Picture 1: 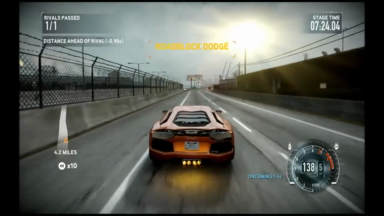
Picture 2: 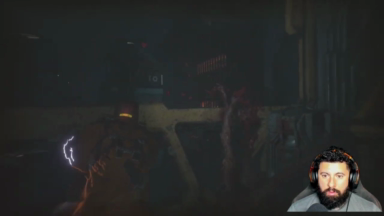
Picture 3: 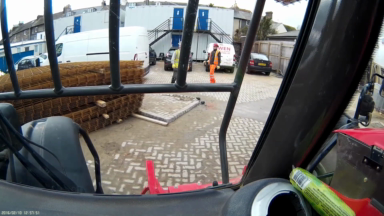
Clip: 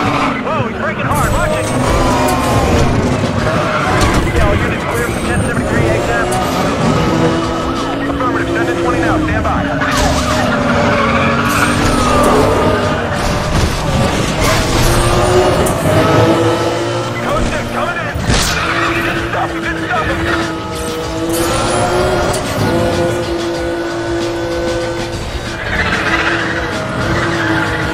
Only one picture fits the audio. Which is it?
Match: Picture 1